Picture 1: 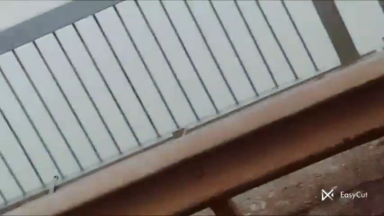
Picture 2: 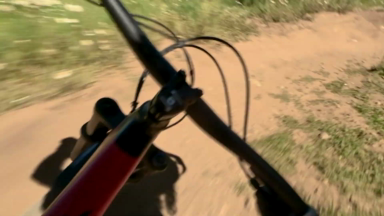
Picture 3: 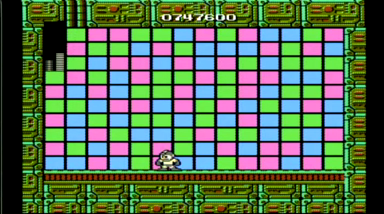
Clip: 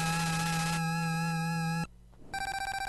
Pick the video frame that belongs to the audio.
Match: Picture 3